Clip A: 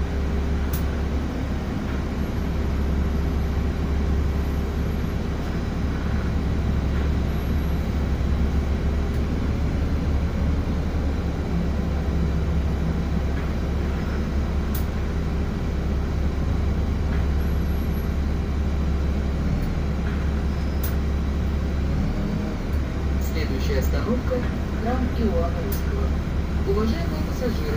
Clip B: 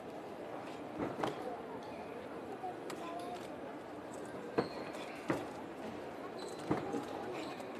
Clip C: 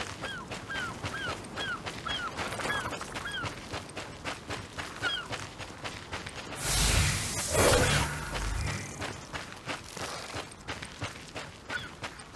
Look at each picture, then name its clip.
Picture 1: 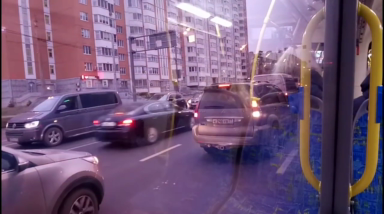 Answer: A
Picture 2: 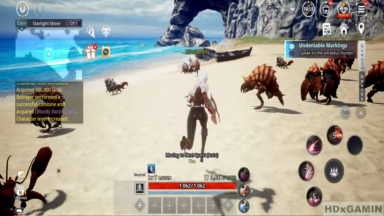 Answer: C